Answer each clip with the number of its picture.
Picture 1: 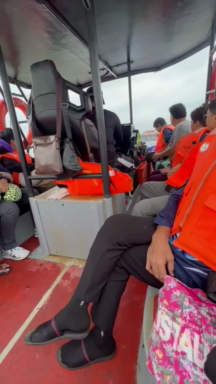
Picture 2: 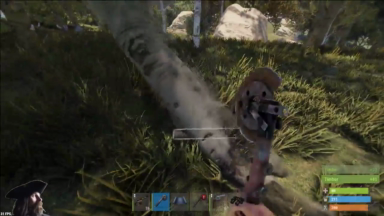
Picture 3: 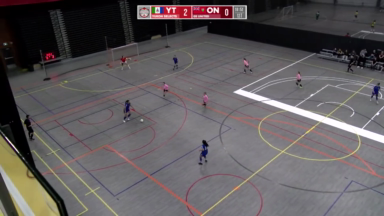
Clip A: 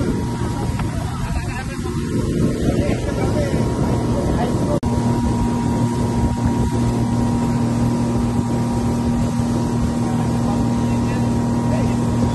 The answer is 1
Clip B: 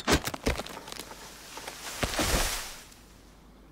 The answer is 2